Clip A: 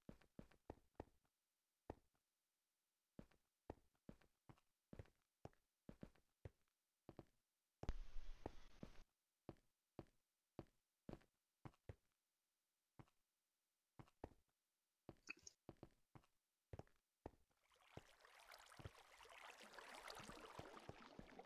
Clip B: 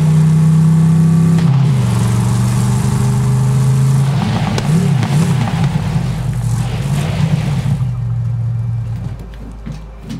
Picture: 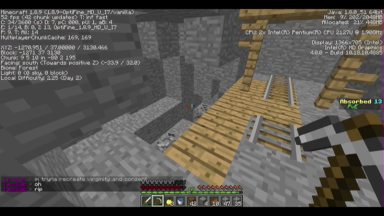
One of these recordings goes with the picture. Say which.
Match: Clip A